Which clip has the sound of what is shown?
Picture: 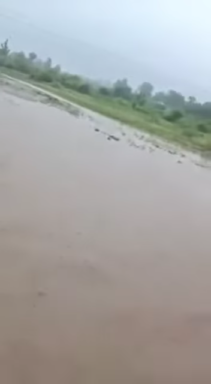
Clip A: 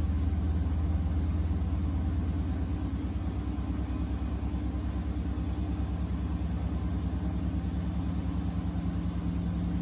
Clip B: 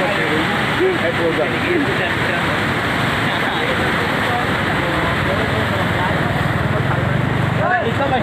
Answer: B